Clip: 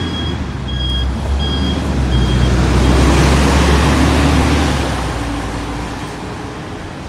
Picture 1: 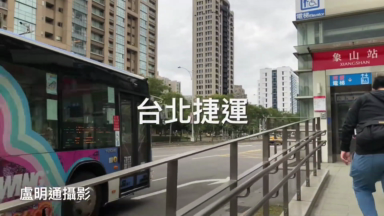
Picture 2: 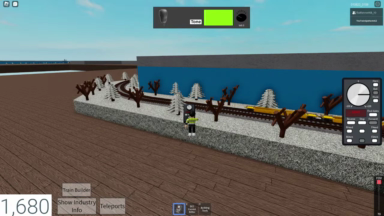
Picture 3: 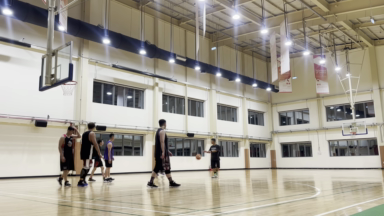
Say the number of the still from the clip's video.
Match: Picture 1